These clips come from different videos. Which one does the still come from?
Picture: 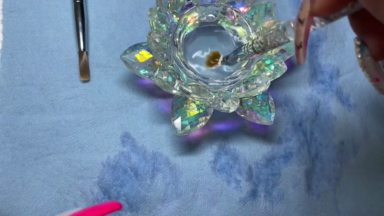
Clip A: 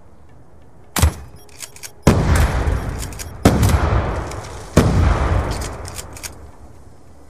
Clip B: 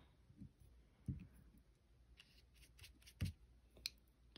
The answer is B